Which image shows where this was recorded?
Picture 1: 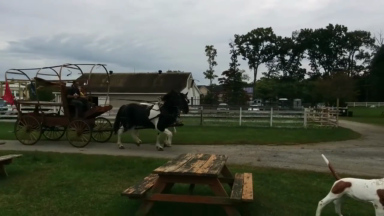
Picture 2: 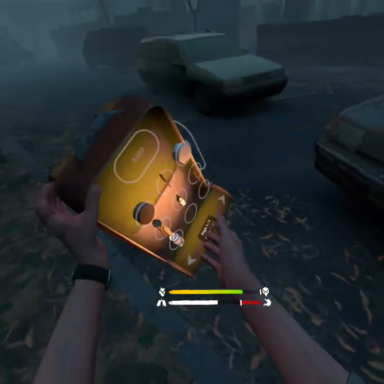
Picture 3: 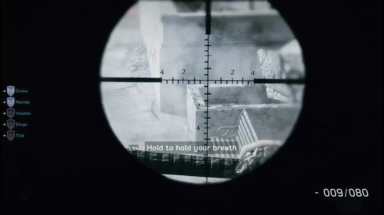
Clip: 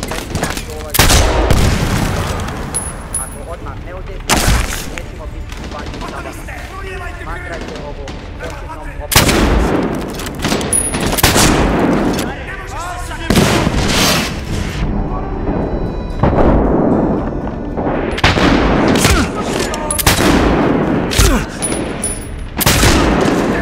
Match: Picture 3